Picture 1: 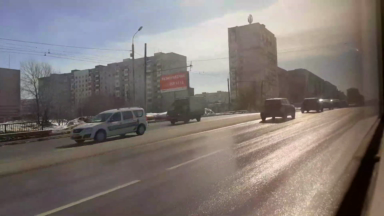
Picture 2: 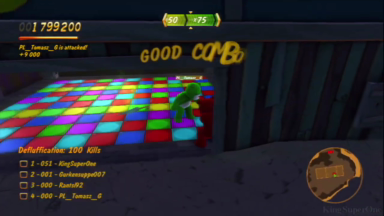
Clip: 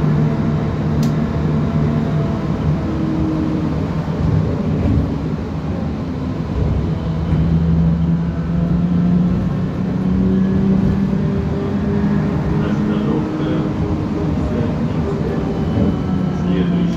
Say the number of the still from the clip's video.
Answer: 1